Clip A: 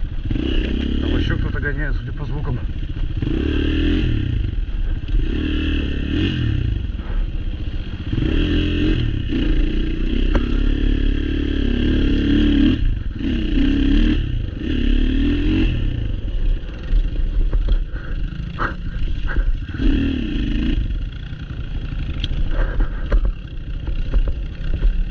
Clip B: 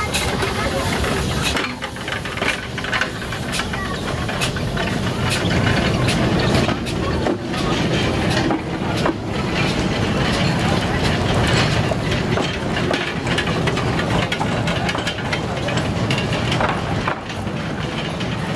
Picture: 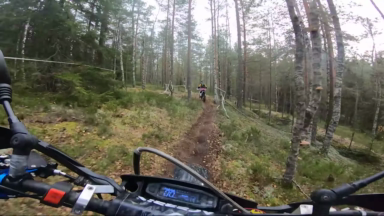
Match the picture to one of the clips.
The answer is A